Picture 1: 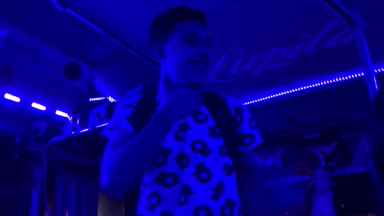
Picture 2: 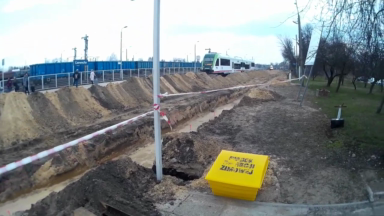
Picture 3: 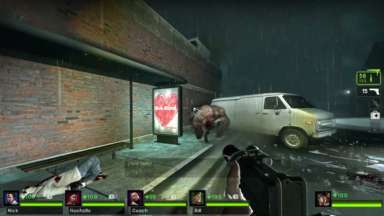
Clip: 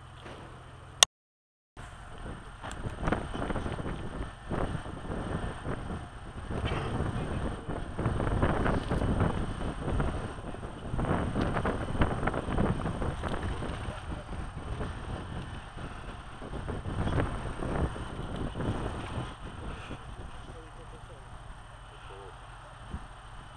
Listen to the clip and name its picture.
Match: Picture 2